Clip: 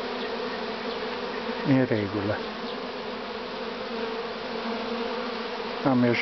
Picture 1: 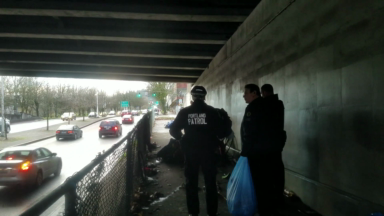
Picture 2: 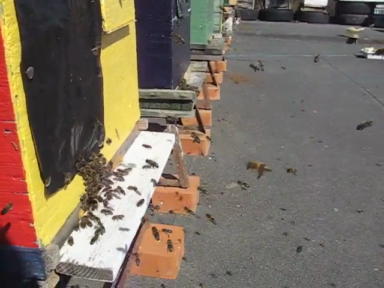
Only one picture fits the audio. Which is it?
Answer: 2